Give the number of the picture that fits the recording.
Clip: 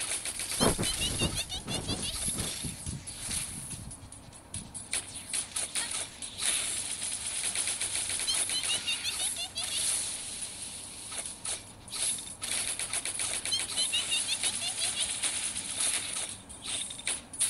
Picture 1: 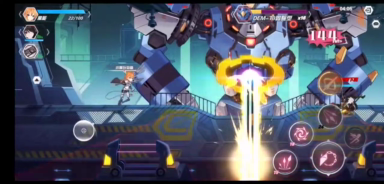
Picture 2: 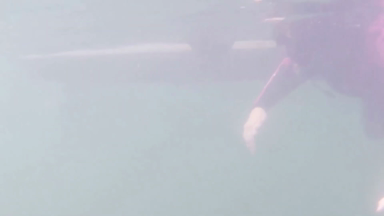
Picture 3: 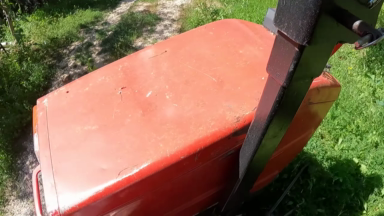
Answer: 1